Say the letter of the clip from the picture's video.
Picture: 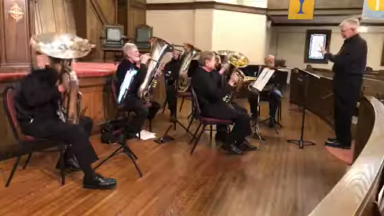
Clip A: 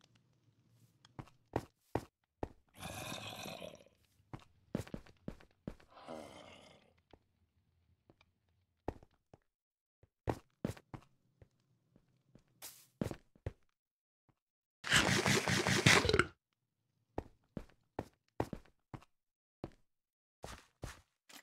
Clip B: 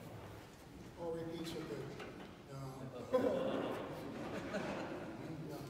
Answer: B